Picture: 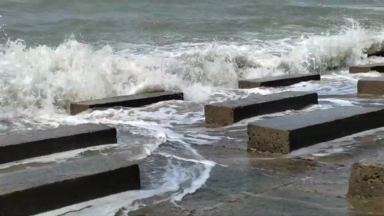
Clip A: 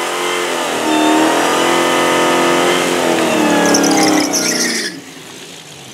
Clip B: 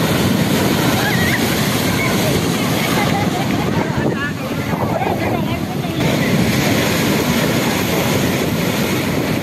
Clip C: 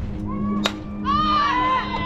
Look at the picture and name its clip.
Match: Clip B